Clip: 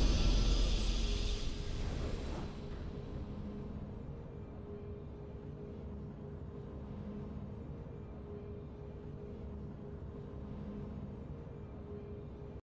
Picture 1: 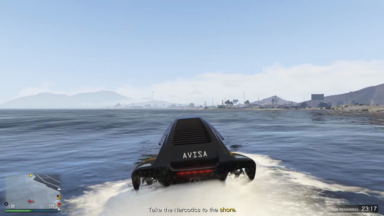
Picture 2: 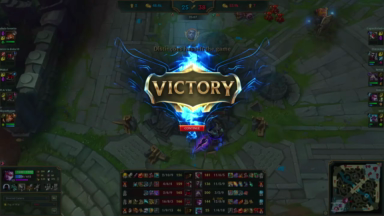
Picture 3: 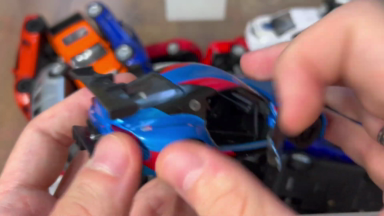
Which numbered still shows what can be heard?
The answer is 2